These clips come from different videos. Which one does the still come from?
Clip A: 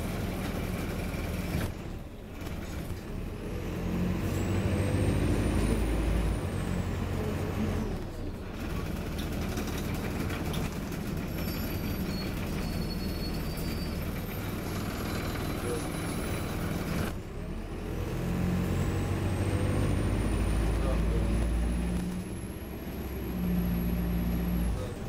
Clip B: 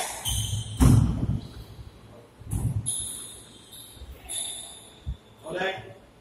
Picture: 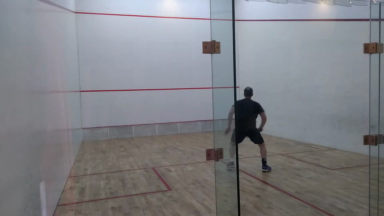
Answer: B